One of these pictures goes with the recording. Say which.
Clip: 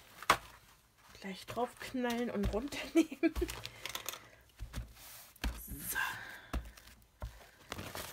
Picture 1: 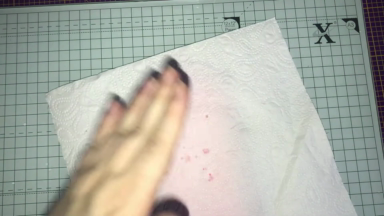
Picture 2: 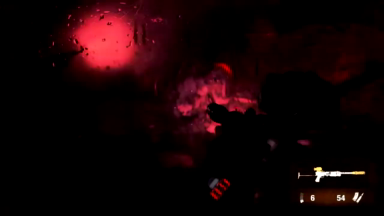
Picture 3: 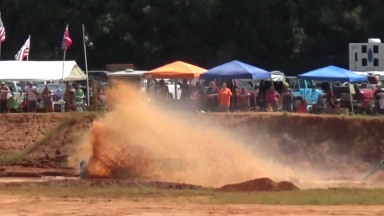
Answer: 1